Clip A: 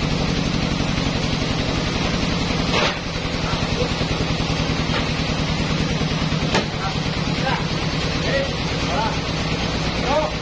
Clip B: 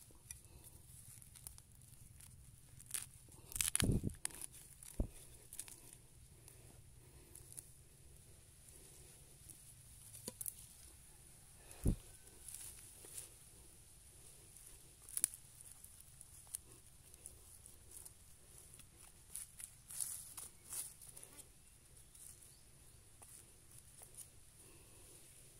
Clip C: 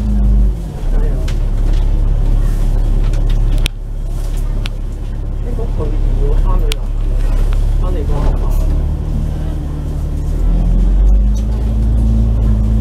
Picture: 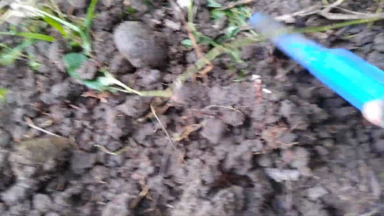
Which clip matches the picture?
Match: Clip B